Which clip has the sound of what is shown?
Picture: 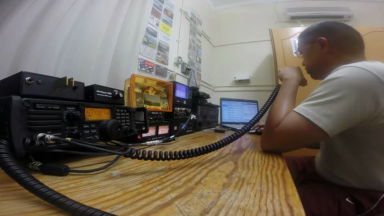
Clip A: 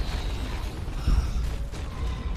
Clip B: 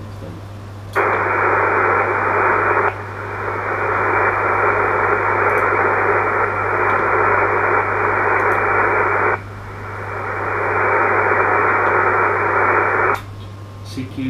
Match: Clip B